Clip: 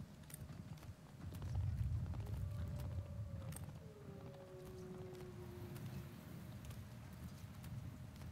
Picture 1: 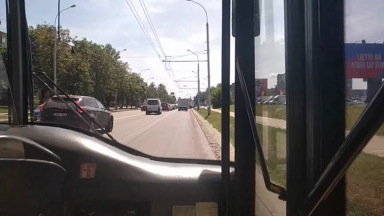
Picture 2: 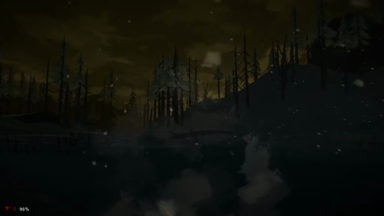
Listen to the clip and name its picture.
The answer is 2